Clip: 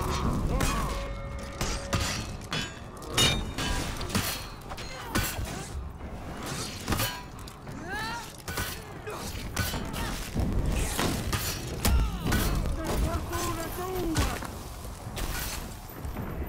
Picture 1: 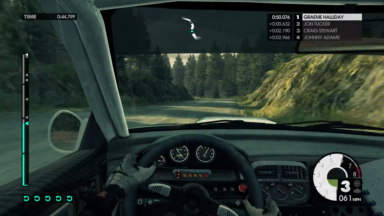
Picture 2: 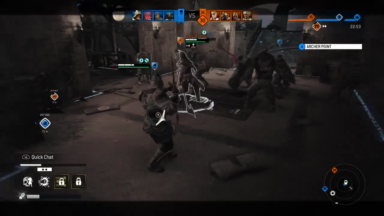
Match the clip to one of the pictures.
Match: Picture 2